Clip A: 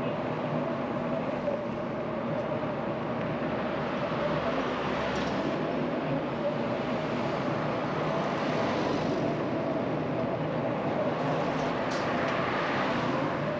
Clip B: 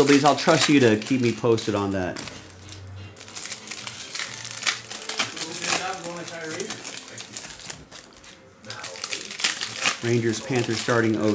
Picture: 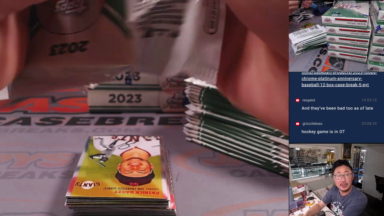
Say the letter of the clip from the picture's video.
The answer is B